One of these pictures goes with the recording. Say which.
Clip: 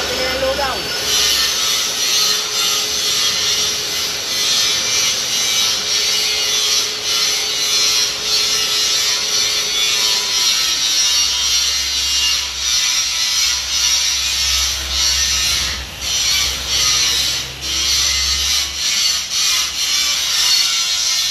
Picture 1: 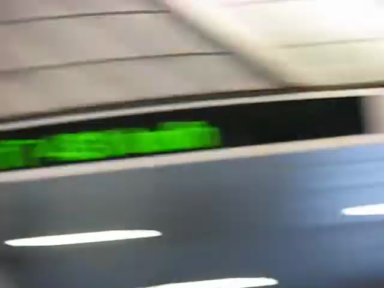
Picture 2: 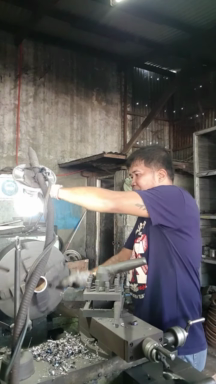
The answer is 2